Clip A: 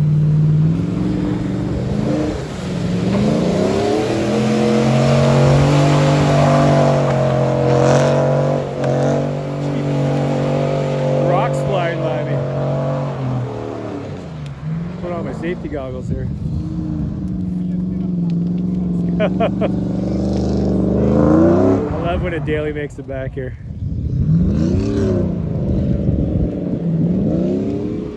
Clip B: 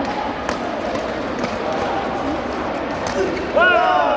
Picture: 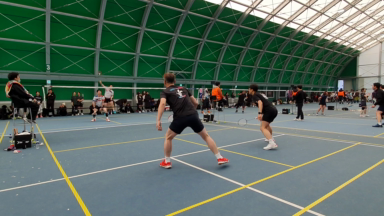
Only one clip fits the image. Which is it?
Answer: B